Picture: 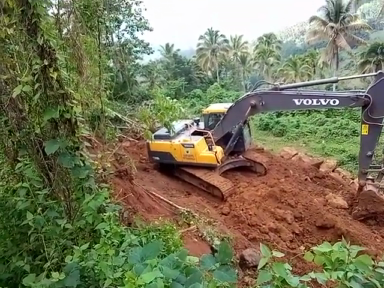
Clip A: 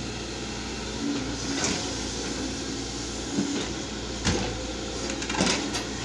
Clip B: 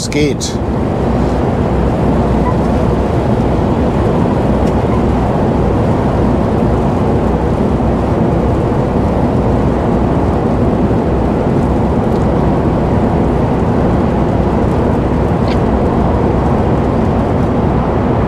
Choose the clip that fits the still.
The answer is A